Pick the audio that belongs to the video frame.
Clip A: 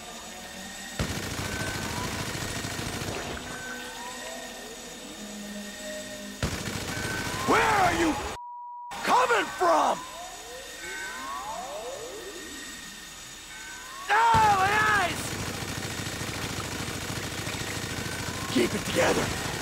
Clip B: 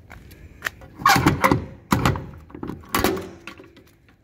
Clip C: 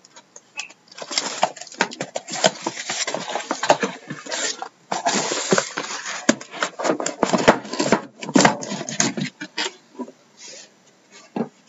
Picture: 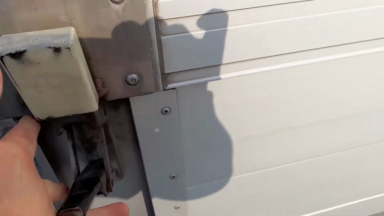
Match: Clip B